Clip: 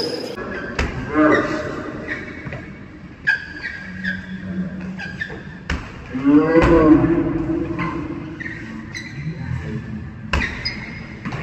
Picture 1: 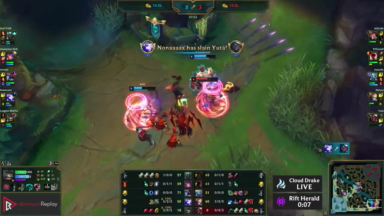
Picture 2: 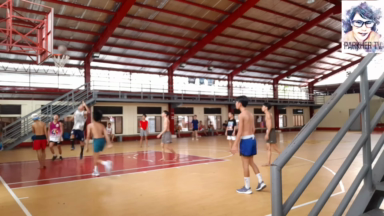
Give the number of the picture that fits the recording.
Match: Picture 2